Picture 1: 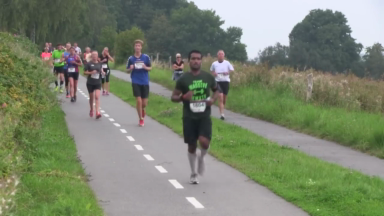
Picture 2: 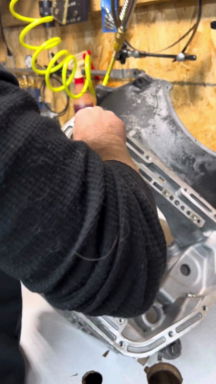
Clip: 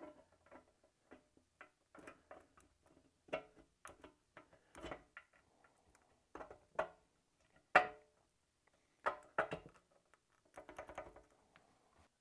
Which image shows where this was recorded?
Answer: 2